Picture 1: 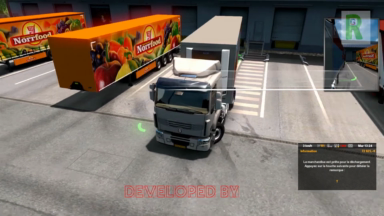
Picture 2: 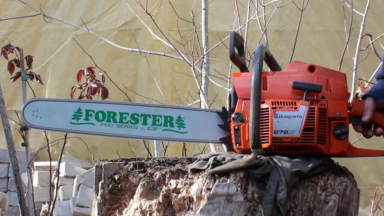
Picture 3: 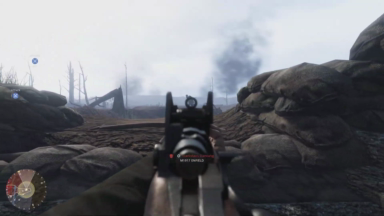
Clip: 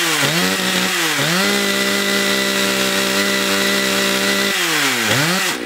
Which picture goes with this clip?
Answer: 2